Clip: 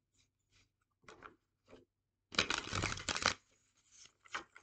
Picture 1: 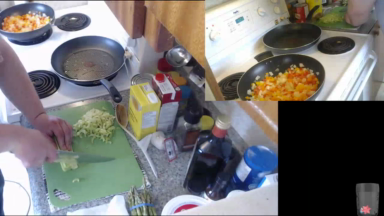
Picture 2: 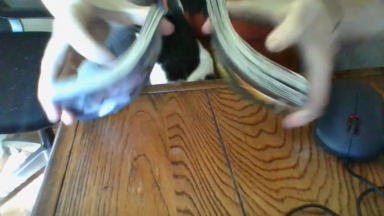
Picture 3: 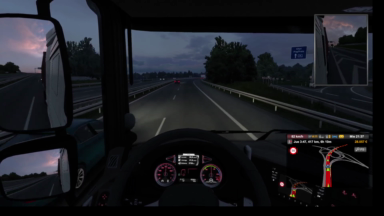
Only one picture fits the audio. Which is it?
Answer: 2